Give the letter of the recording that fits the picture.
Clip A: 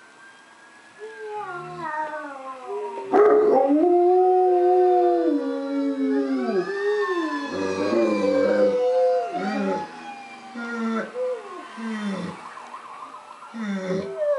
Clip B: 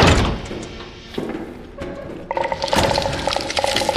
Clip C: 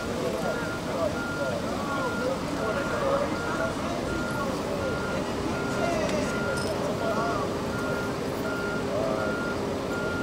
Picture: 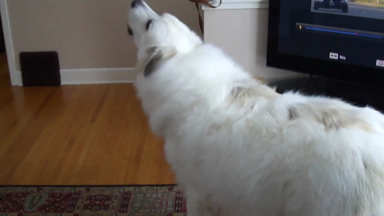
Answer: A